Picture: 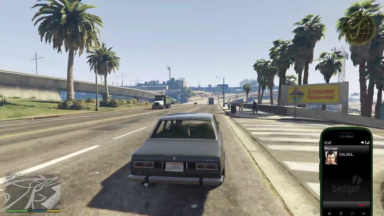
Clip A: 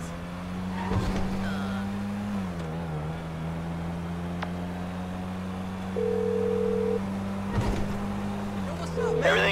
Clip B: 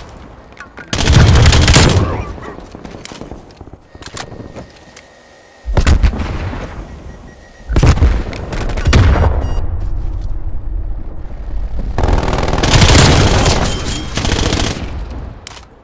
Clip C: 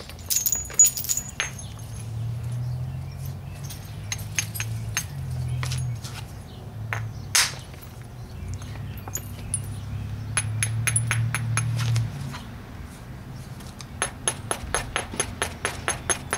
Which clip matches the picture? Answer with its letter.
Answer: A